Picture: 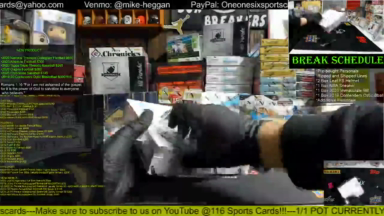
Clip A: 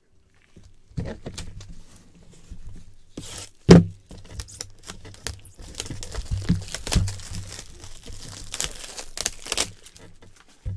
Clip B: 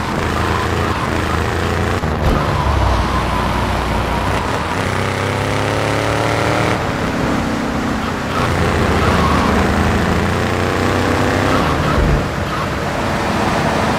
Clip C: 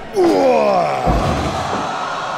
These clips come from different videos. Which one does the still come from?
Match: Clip A